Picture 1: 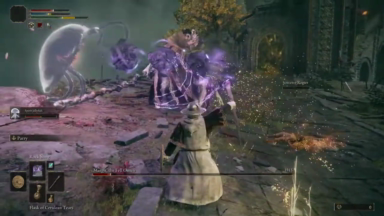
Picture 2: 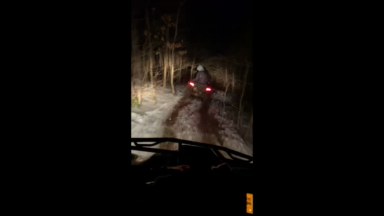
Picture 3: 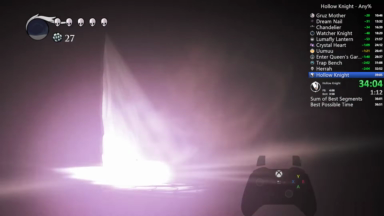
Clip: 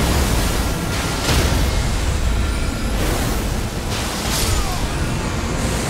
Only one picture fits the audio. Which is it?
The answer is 1